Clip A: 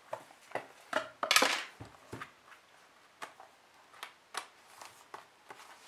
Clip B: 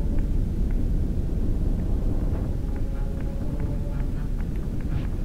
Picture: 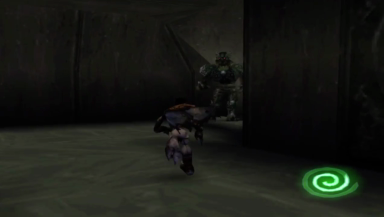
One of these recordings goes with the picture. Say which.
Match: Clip B